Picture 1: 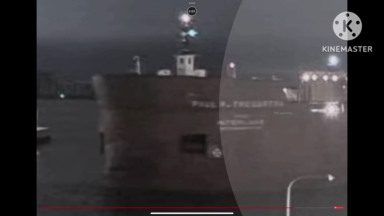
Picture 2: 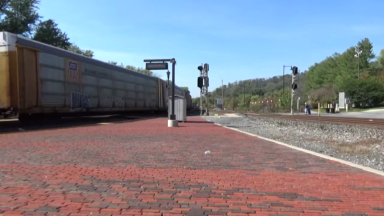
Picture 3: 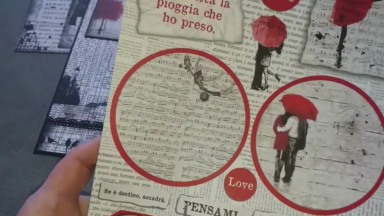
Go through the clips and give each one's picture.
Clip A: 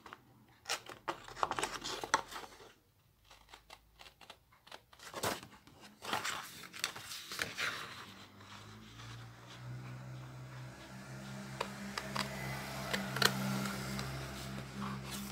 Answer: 3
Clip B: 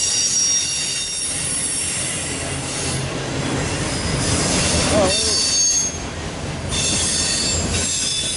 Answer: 2